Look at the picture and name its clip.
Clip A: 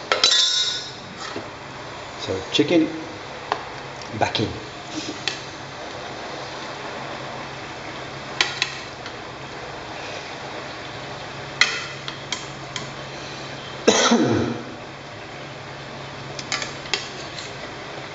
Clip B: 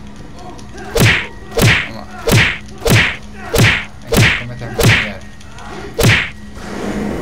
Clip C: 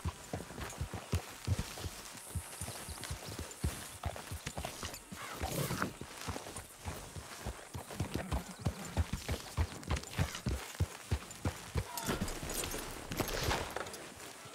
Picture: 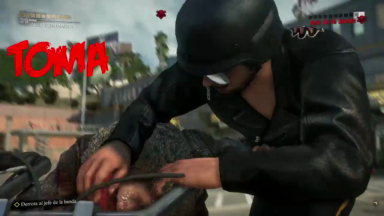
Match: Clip B